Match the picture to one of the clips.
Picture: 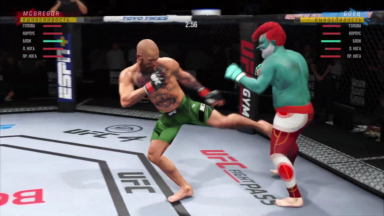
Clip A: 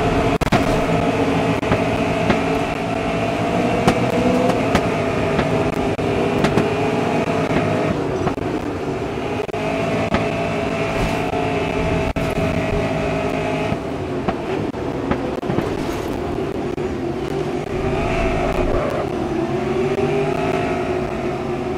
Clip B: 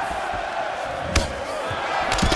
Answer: B